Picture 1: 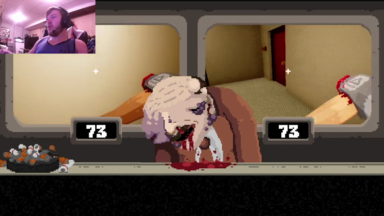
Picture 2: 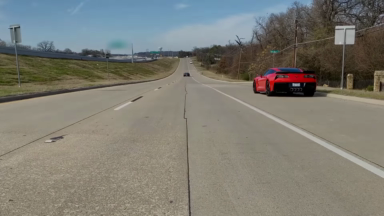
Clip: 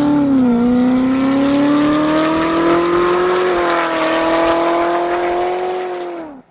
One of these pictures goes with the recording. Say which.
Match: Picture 2